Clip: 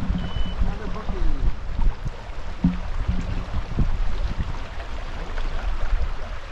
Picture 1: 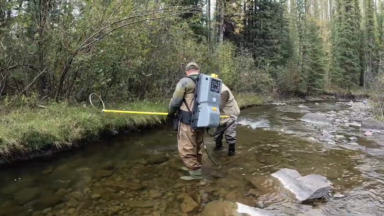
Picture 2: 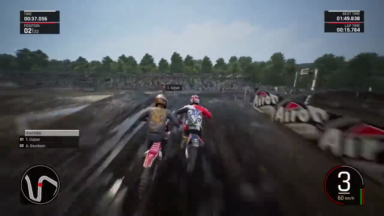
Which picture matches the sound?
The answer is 1